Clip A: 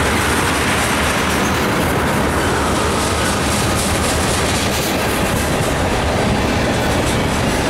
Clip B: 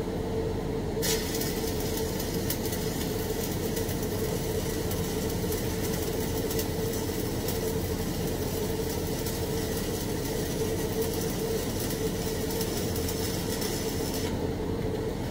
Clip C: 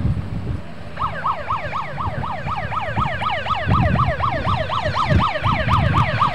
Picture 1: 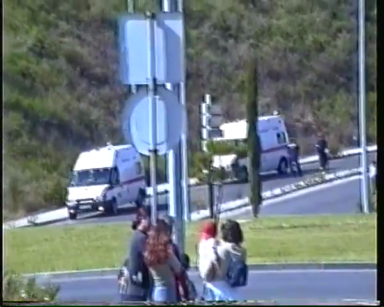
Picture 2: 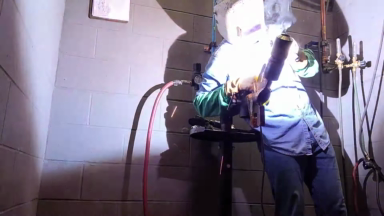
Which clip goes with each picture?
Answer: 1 C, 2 B